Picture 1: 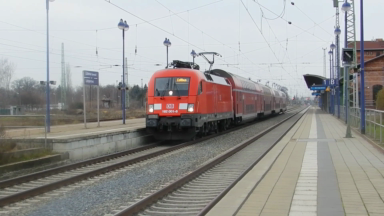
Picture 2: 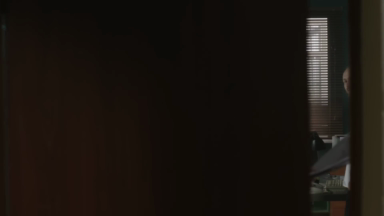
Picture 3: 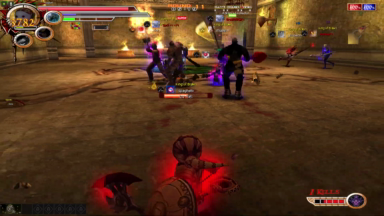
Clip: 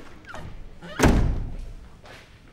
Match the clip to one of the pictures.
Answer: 2